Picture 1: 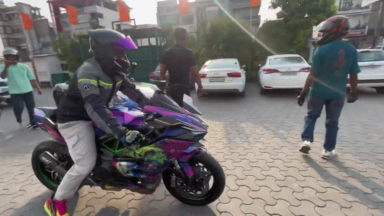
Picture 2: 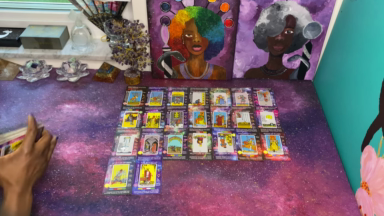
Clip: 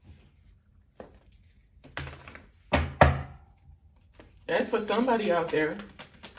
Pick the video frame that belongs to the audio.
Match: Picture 2